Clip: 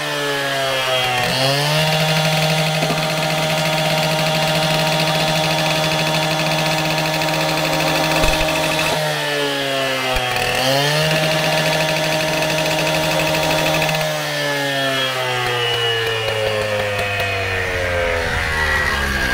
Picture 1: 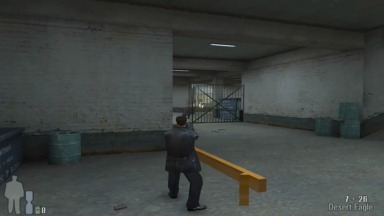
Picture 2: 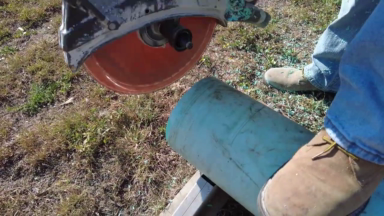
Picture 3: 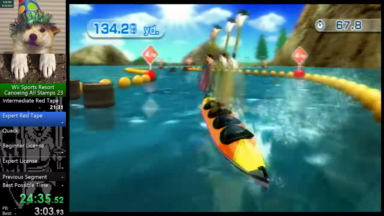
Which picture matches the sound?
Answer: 2